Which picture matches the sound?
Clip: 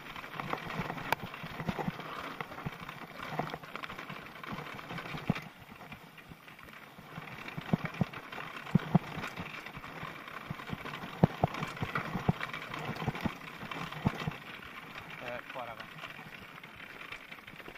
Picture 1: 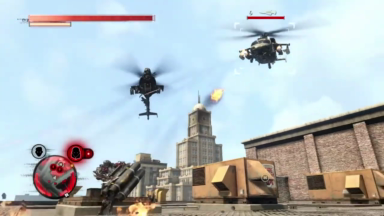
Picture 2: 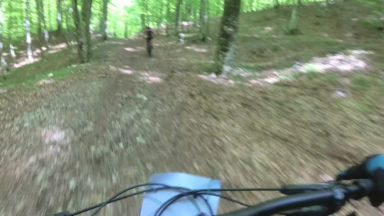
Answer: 2